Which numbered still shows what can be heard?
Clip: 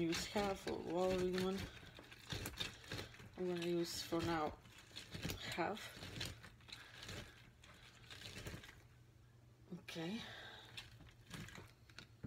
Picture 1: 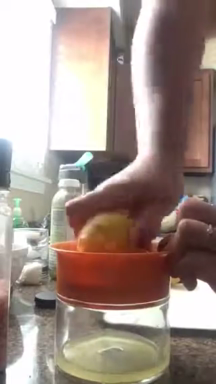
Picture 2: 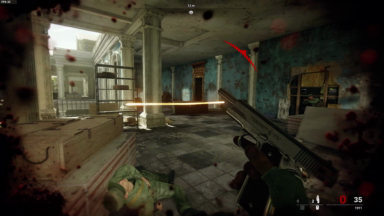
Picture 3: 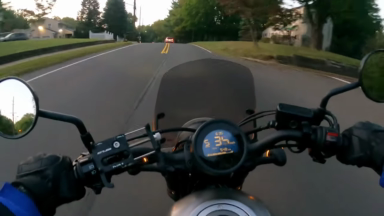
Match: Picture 1